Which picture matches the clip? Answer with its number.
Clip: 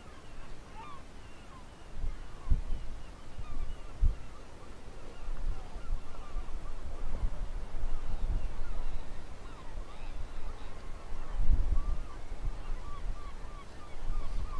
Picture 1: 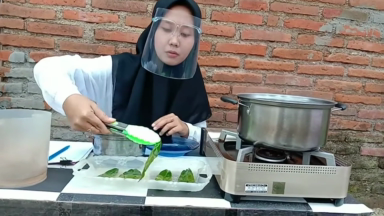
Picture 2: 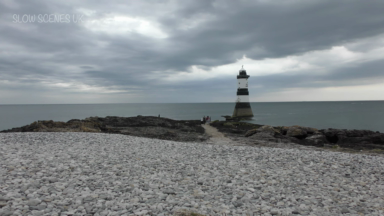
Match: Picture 2